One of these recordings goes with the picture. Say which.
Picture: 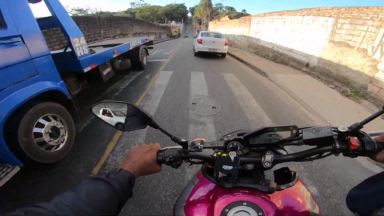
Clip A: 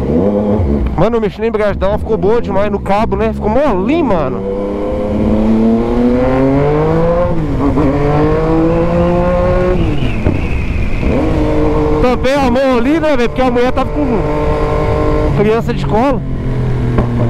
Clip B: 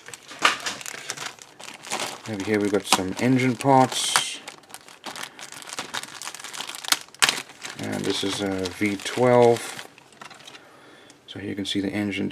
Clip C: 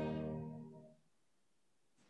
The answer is A